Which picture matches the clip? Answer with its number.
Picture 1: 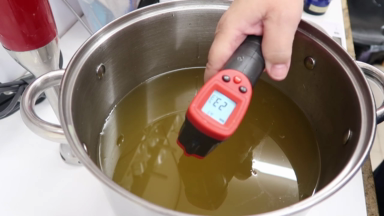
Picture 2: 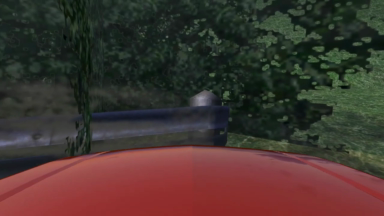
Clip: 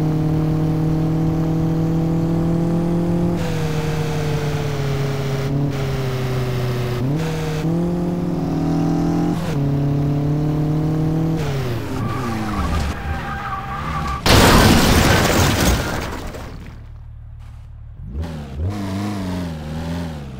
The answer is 2